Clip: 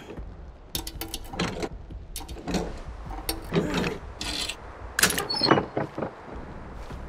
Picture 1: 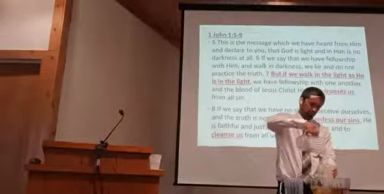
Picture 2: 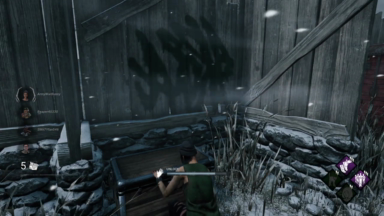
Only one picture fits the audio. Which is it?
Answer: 2